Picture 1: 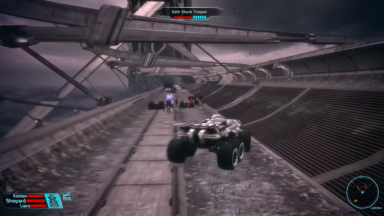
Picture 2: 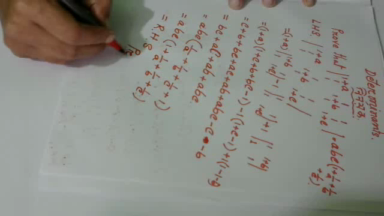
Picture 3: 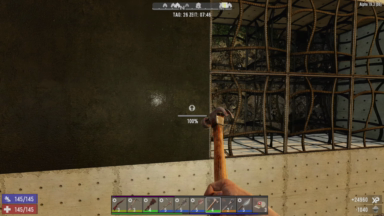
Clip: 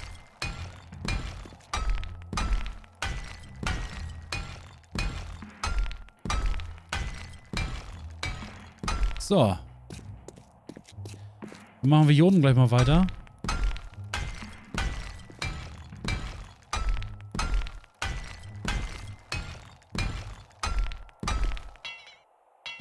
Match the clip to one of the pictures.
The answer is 3